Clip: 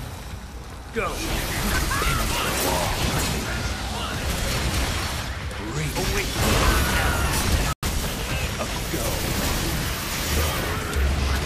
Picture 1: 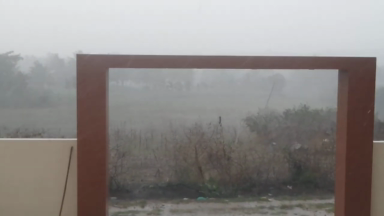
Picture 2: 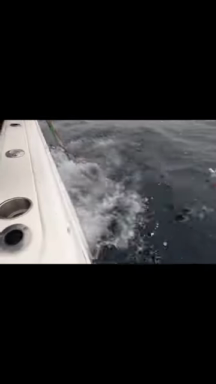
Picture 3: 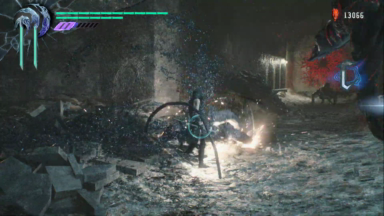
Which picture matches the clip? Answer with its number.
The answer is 3